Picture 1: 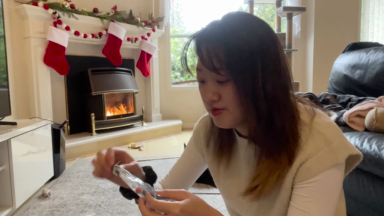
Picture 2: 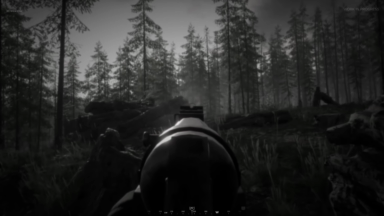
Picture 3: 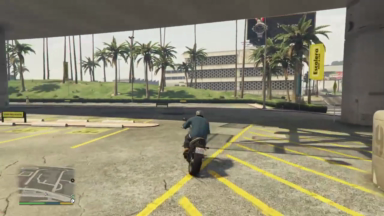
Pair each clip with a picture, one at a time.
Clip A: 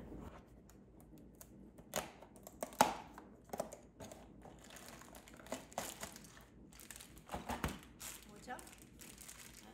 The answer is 1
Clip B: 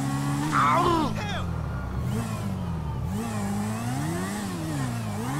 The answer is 3